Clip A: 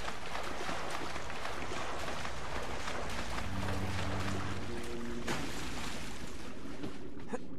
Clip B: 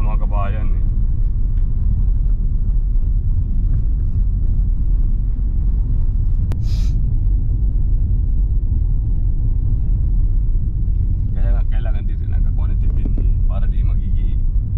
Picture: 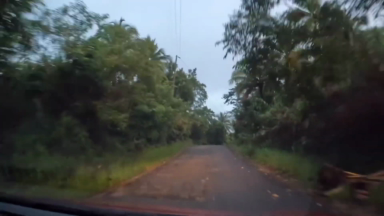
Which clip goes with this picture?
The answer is B